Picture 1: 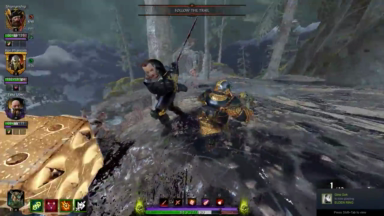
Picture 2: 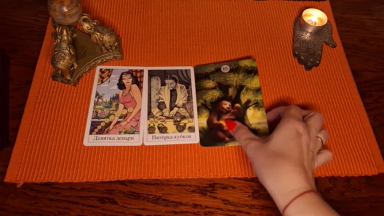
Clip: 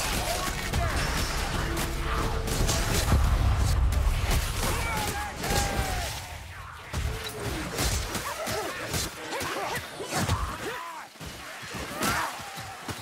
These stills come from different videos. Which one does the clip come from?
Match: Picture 1